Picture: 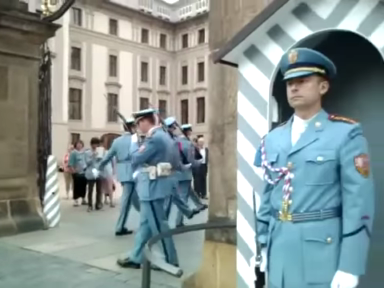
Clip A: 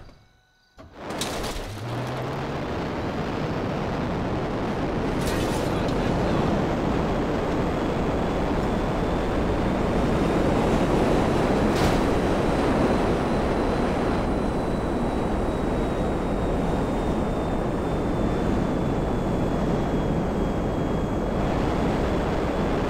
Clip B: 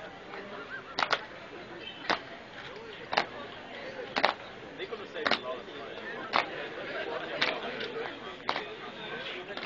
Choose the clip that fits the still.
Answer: B